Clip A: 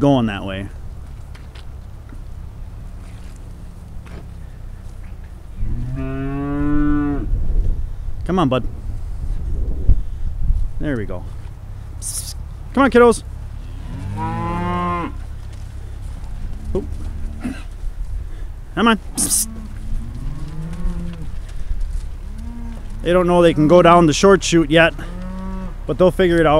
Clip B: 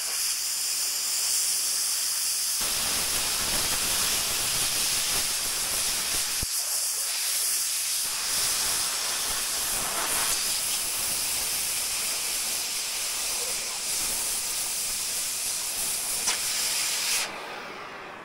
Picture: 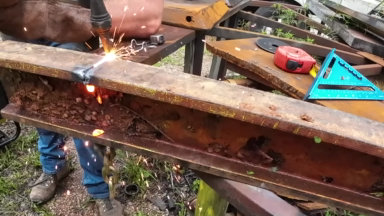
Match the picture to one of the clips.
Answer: B